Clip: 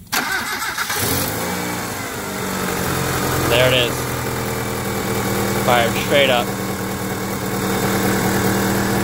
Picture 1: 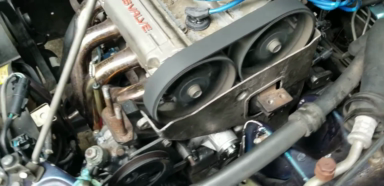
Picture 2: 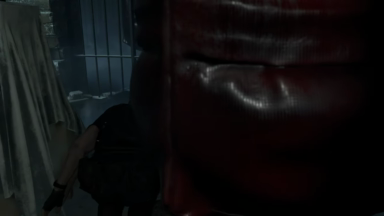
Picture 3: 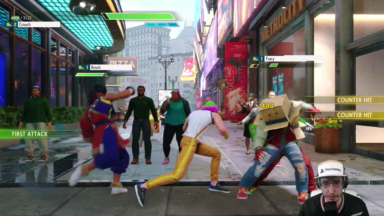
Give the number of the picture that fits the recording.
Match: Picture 1